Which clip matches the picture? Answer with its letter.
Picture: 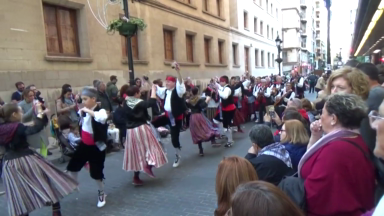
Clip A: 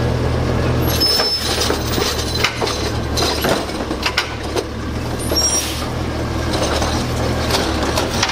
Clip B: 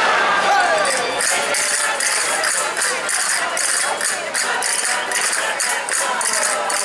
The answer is B